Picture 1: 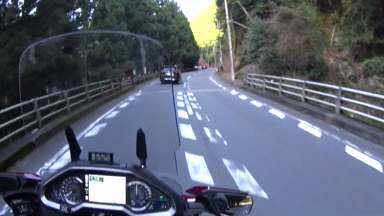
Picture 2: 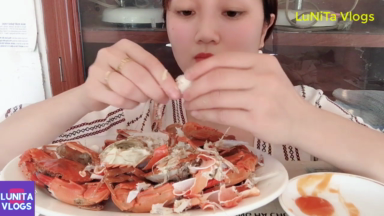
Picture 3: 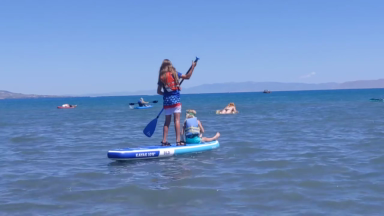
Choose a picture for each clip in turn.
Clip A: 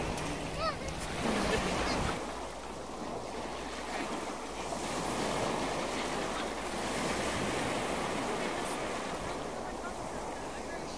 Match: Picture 3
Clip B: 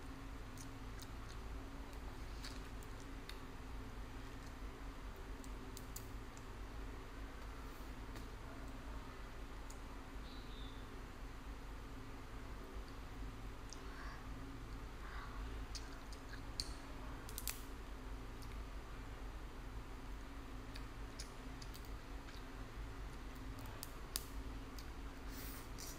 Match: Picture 2